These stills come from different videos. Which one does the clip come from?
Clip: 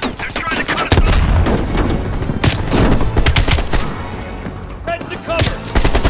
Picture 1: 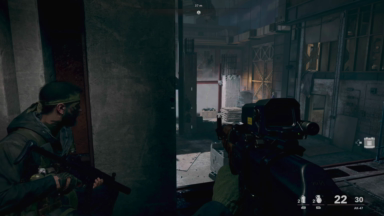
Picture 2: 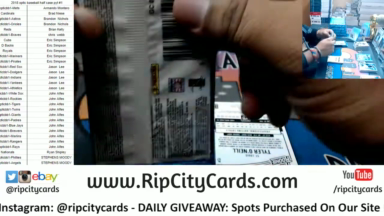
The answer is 1